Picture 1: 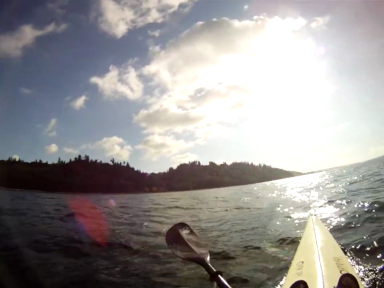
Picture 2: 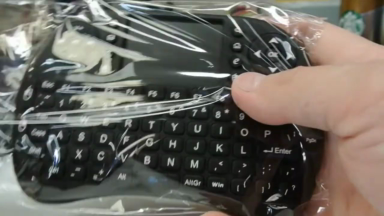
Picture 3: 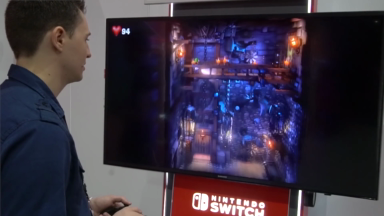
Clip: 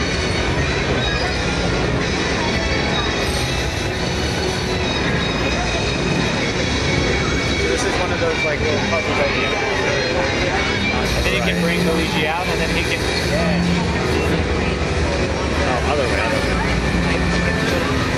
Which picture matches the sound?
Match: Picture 3